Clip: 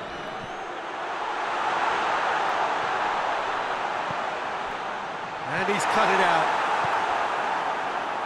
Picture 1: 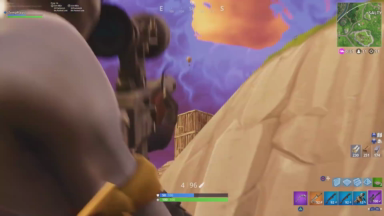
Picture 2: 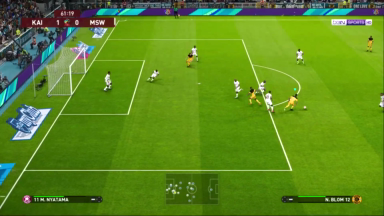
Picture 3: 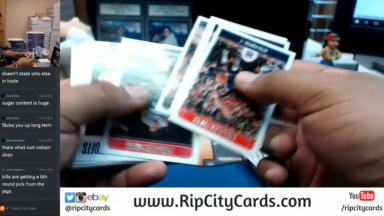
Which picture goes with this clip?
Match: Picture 2